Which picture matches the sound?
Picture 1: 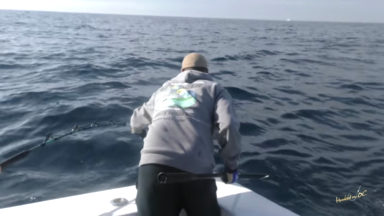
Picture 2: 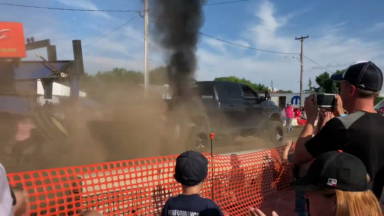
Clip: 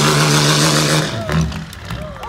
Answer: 2